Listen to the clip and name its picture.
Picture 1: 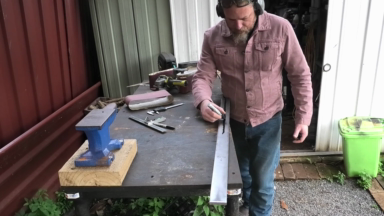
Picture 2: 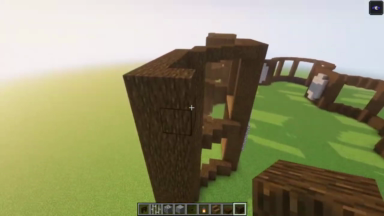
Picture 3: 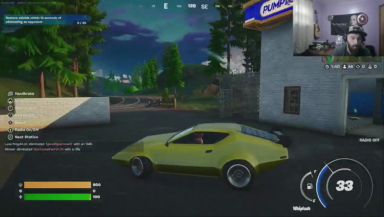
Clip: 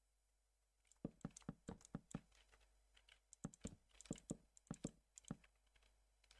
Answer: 2